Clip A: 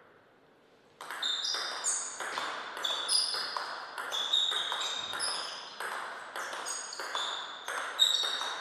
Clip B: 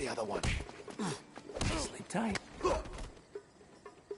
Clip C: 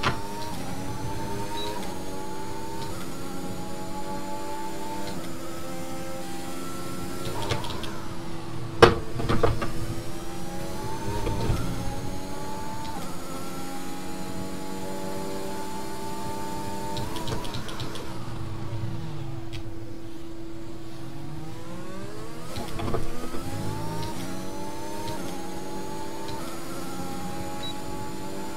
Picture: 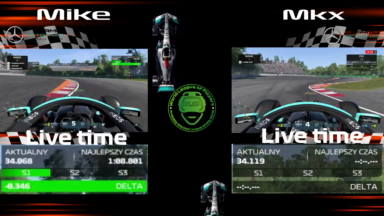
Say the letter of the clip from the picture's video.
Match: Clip C